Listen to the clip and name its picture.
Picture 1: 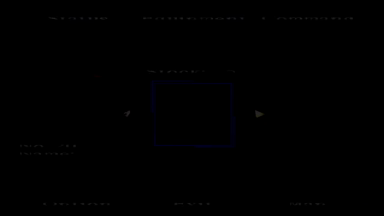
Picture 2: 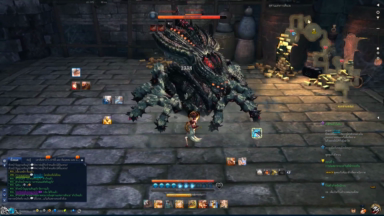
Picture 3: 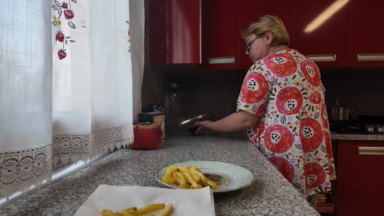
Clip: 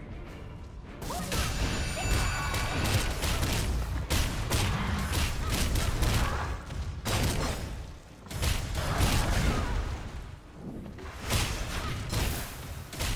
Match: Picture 2